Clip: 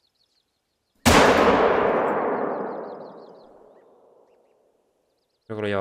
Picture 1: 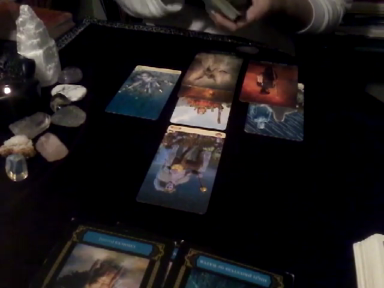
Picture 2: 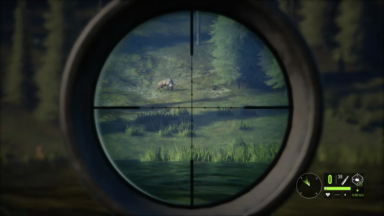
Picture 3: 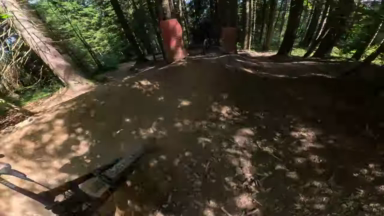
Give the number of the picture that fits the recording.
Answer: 2